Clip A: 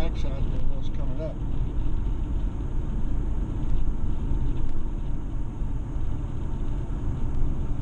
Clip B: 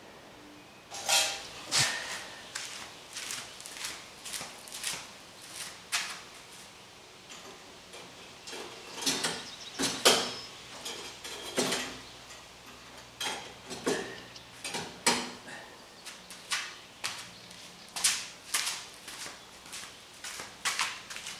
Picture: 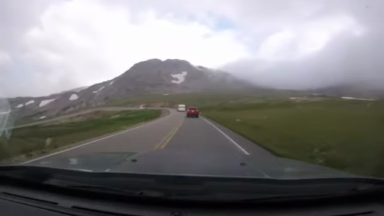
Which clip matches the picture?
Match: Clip A